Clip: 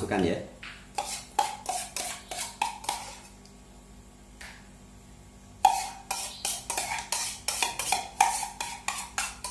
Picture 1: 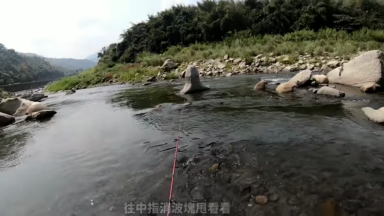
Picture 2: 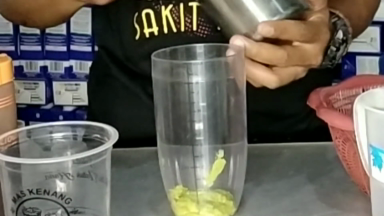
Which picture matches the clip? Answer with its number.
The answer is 2